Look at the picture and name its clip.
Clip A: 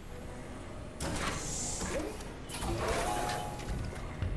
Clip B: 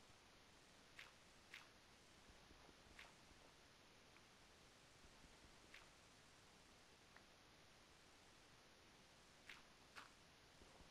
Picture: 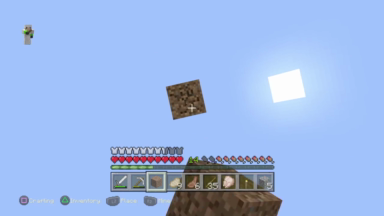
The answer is B